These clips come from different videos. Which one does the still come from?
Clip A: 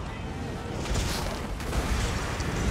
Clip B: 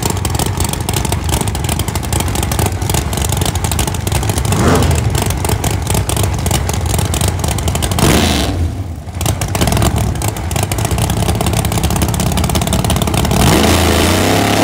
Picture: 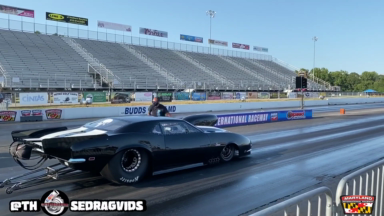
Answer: B